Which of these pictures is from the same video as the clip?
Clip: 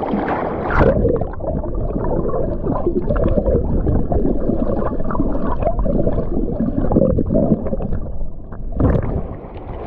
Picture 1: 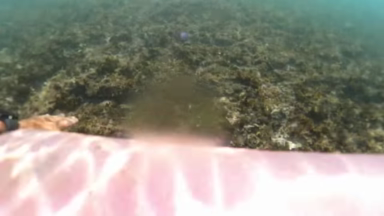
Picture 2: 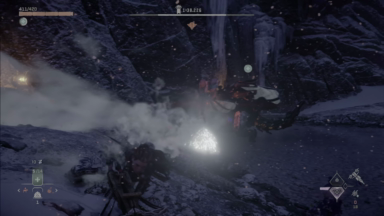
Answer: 1